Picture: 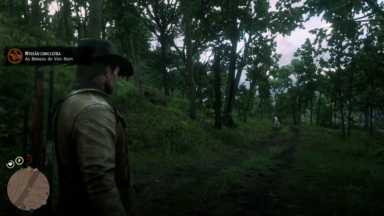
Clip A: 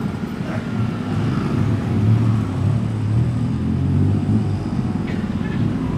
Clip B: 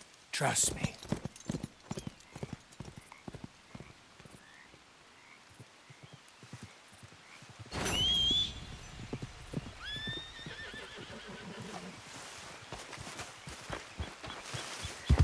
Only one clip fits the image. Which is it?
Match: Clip B